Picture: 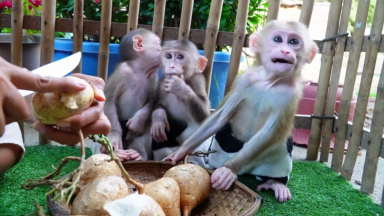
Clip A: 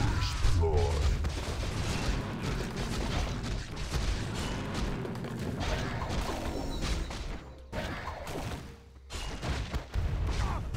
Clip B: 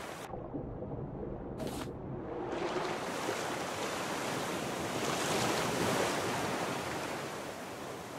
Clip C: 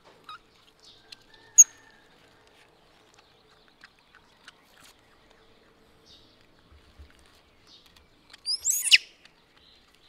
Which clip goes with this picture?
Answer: C